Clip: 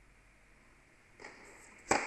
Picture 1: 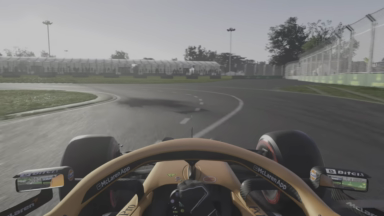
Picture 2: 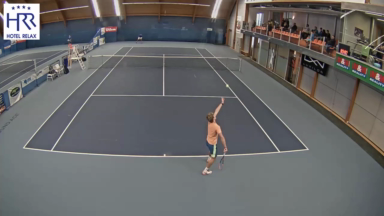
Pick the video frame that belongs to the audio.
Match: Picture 2